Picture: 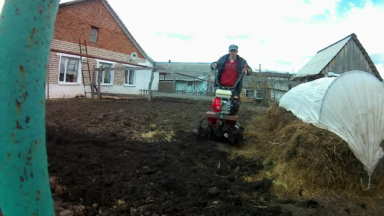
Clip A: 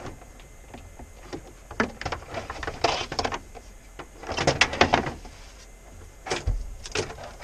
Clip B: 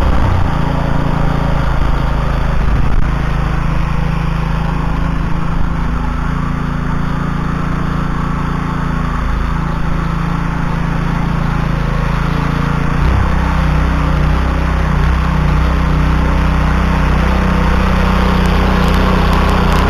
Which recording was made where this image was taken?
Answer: B